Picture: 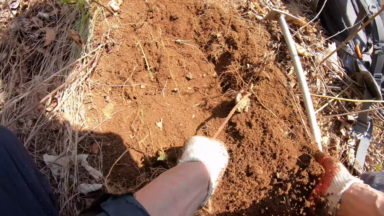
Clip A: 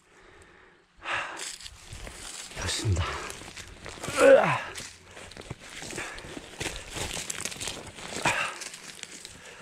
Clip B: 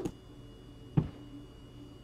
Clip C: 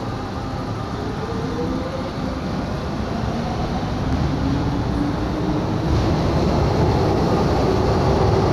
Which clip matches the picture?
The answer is A